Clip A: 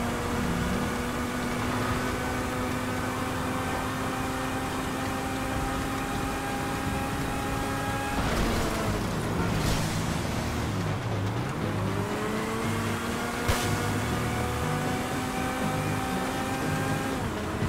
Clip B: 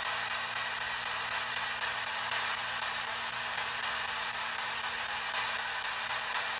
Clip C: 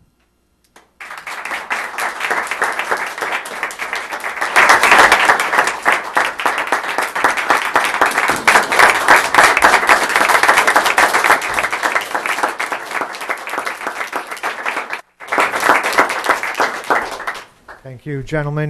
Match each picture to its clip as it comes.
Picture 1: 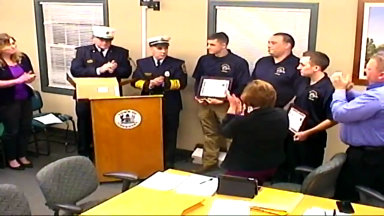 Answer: C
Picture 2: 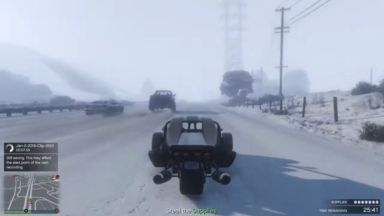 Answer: A